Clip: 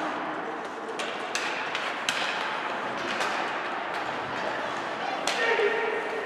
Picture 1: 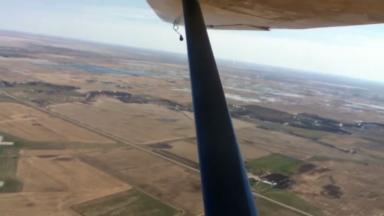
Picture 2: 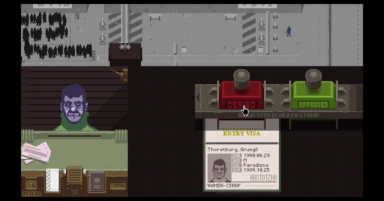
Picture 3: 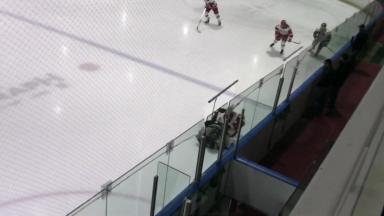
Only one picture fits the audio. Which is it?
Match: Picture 3